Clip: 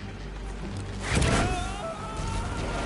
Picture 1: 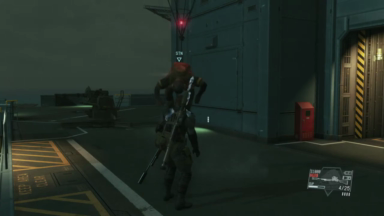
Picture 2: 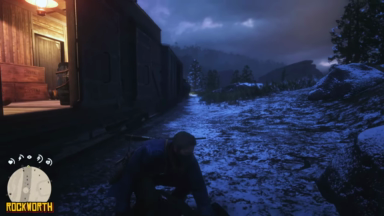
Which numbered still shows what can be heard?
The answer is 1